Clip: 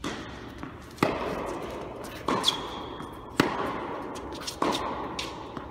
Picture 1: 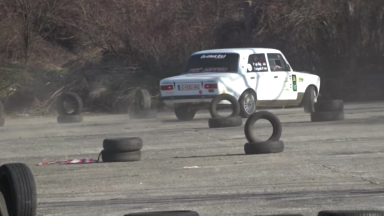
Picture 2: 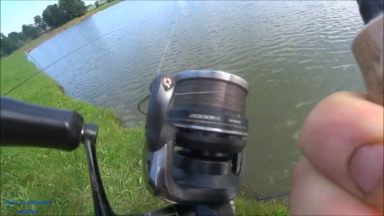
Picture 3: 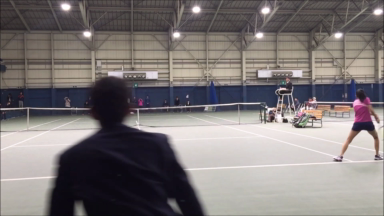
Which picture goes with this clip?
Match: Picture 3